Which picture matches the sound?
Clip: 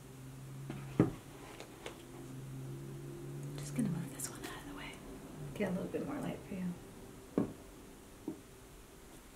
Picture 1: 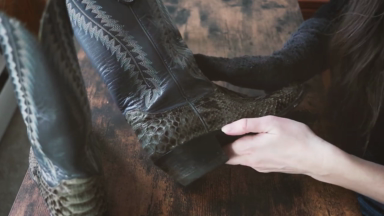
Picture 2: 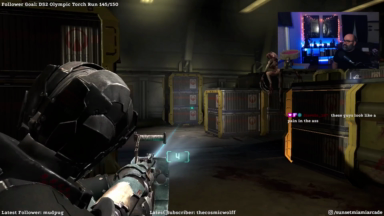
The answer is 1